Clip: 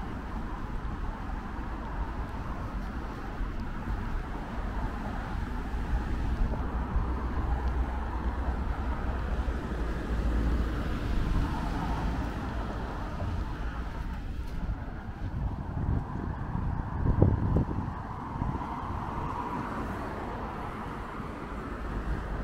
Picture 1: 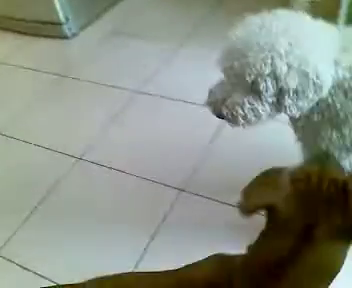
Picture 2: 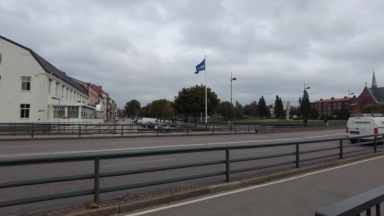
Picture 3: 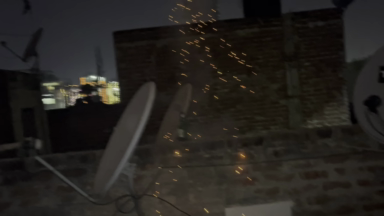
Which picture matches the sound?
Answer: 2